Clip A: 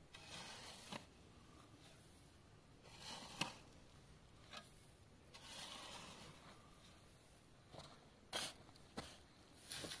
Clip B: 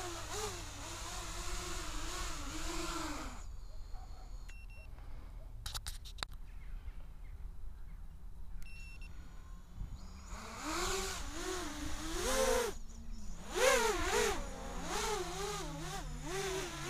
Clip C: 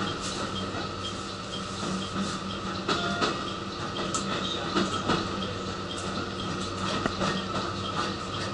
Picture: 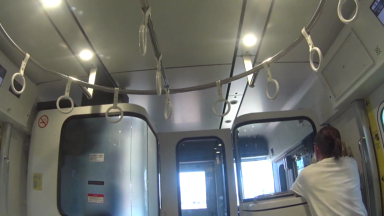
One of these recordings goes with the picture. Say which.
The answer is C